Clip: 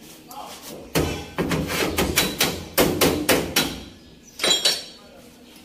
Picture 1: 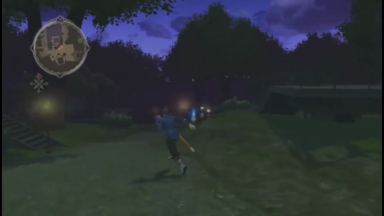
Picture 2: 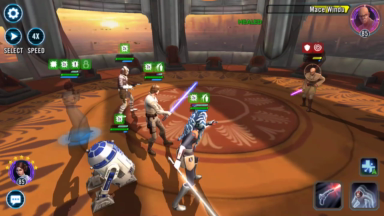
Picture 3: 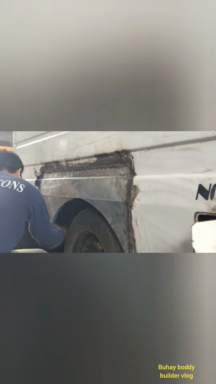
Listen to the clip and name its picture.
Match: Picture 3